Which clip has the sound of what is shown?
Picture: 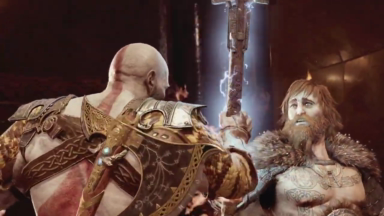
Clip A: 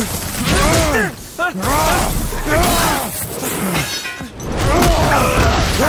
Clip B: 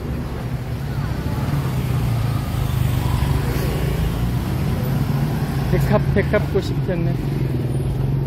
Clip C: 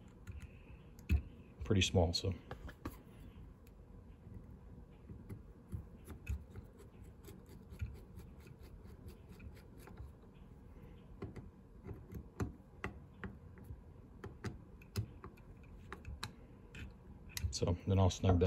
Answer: A